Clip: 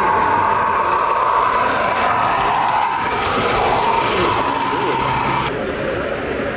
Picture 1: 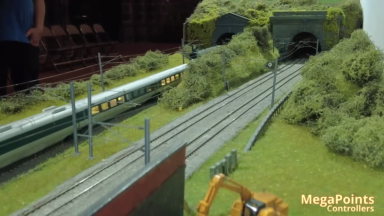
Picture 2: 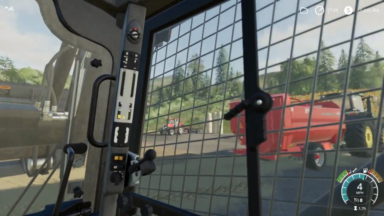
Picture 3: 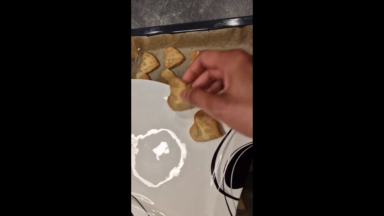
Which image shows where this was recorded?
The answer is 1